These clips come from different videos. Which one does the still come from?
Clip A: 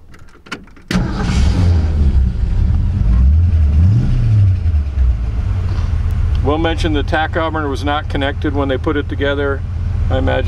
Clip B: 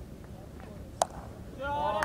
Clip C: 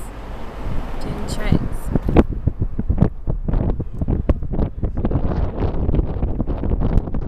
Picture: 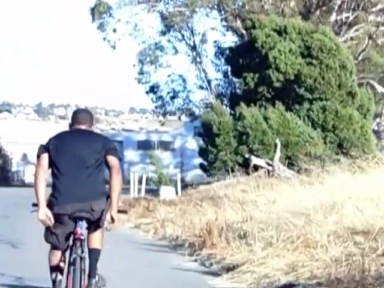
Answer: C